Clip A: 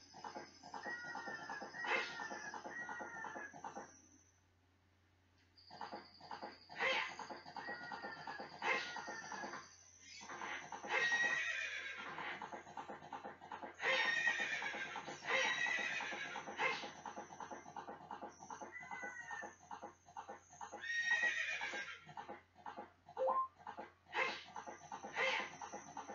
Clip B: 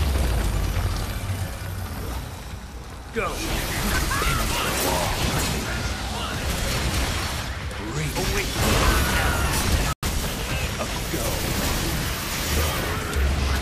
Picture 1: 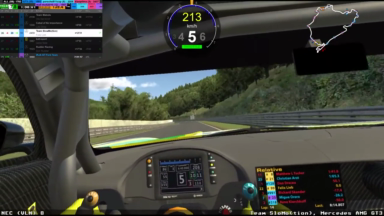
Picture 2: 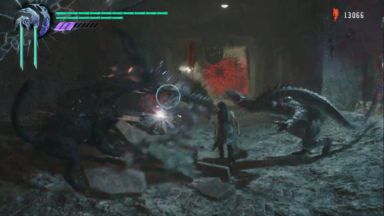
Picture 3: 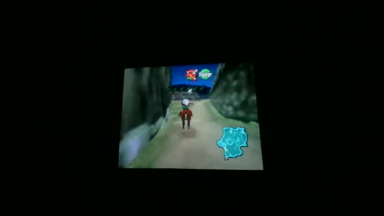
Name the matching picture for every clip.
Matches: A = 3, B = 2